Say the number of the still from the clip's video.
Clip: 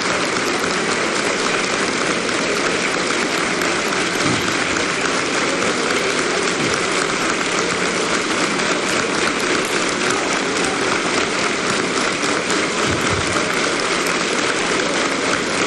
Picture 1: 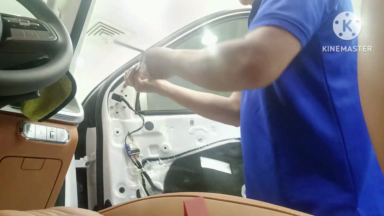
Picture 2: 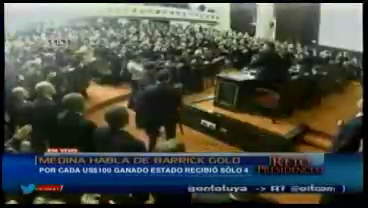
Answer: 2